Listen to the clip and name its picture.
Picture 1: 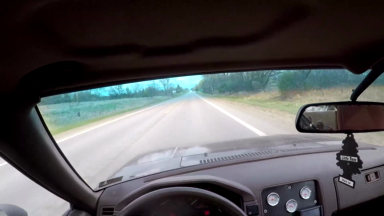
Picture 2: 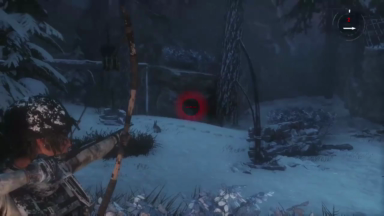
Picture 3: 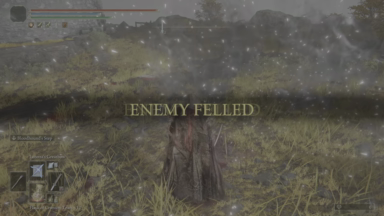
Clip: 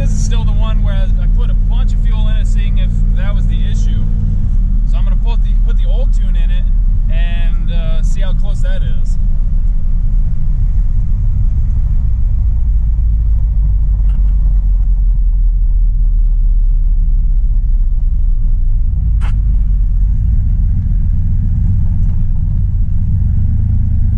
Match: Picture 1